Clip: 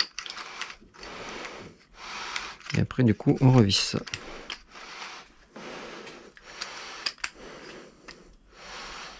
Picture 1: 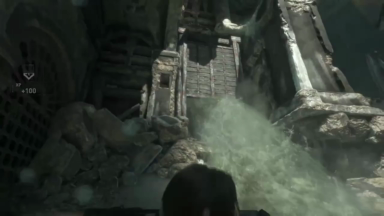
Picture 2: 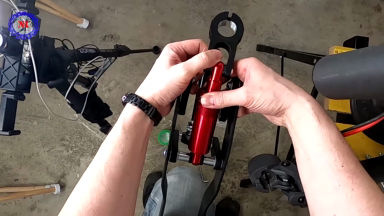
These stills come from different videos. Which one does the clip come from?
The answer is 2